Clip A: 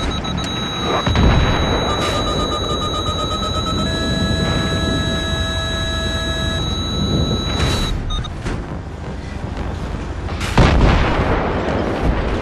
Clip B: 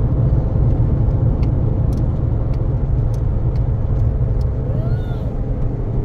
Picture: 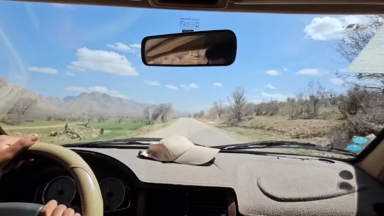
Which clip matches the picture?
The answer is B